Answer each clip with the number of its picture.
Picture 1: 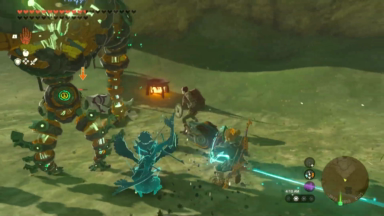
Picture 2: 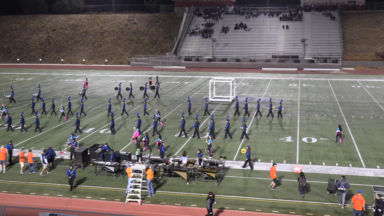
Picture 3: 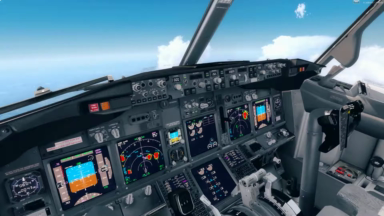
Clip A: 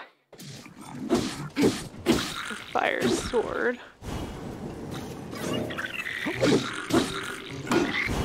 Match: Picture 1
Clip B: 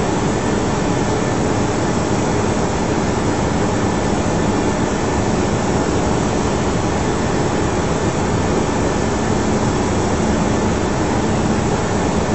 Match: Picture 3